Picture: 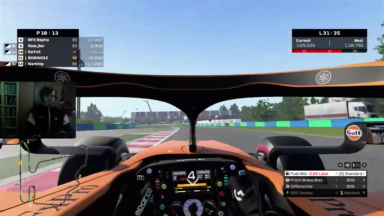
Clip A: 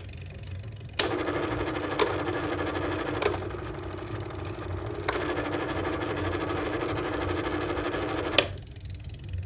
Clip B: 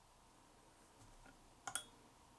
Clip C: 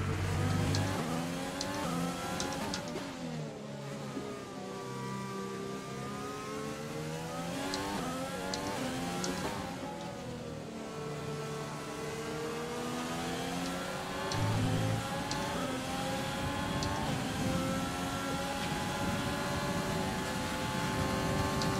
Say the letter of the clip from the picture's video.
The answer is C